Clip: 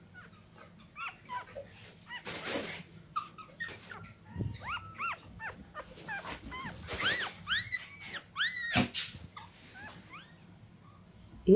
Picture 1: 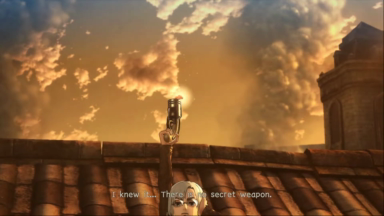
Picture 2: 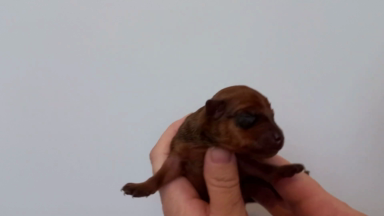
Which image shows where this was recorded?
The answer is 2